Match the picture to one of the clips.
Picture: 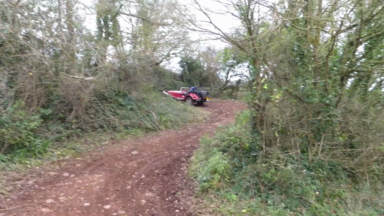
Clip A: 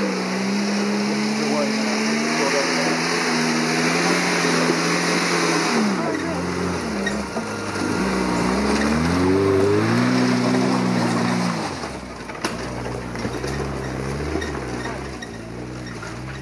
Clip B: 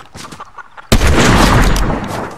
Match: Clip A